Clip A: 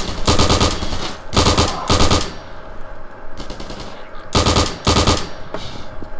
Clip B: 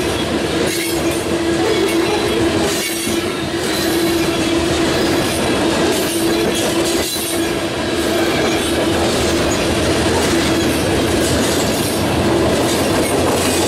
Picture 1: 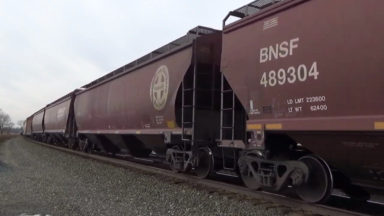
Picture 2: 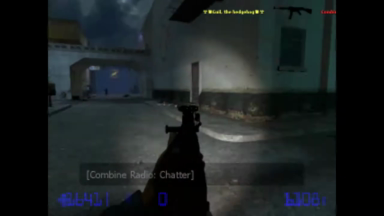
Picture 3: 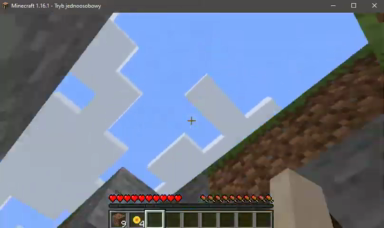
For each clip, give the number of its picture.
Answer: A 2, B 1